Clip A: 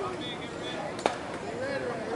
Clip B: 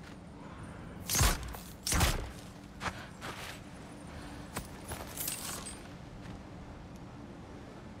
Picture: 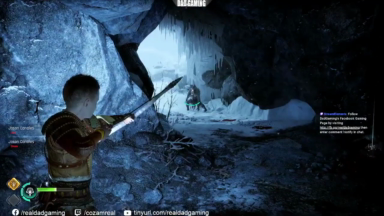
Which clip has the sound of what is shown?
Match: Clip B